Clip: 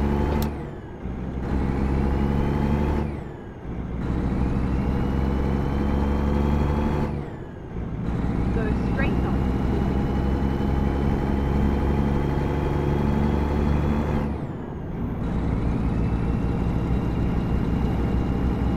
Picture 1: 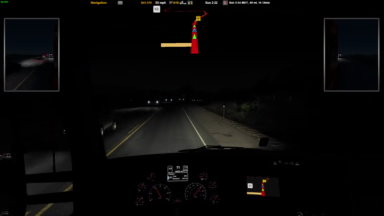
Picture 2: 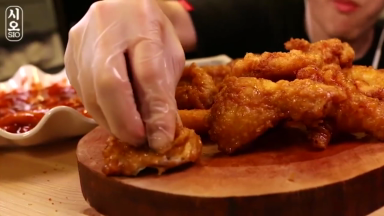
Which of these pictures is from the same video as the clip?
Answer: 1